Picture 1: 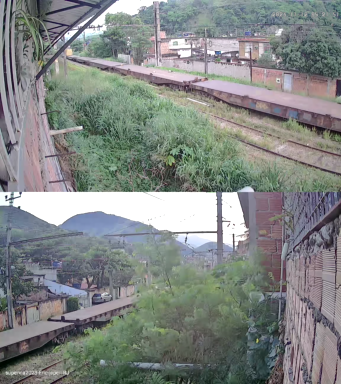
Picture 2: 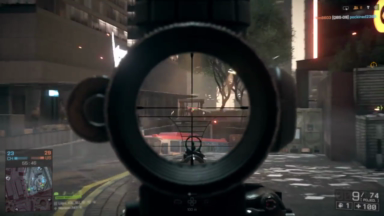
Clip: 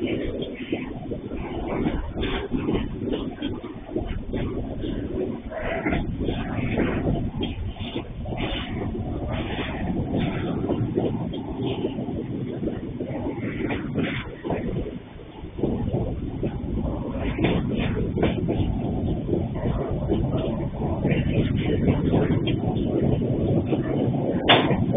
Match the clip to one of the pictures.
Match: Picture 1